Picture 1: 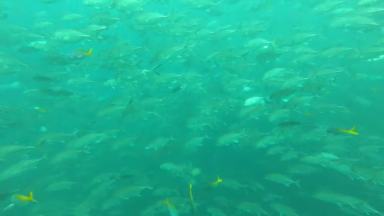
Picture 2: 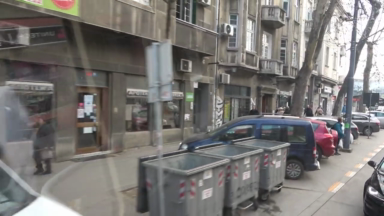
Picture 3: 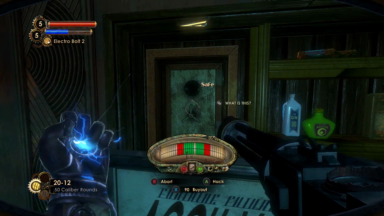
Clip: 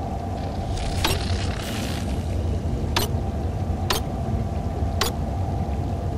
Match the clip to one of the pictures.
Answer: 3